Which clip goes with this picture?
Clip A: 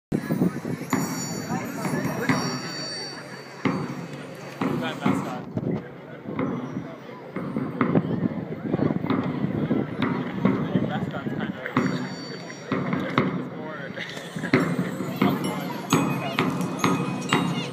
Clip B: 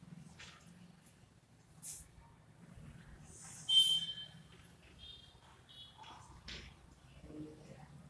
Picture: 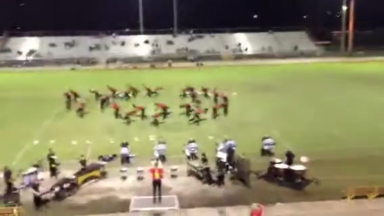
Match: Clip A